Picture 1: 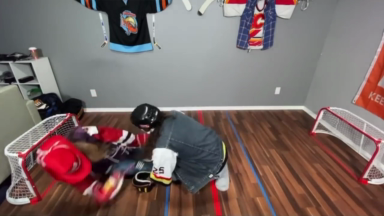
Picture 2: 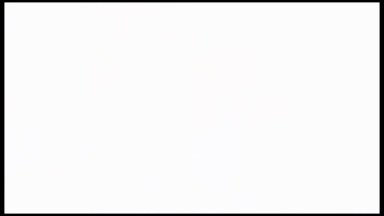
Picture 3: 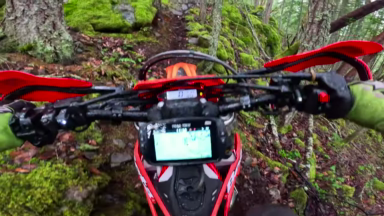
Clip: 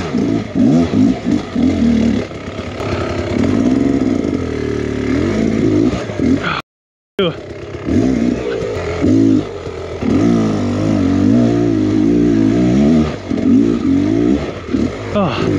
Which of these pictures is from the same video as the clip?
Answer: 3